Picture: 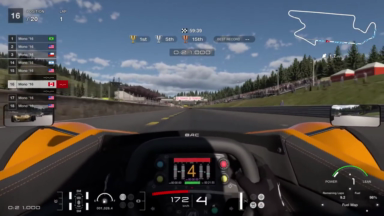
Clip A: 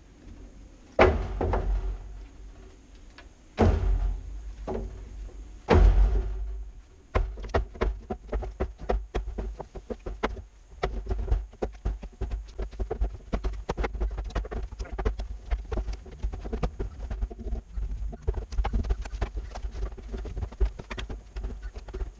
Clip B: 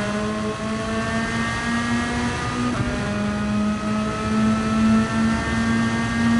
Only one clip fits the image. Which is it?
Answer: B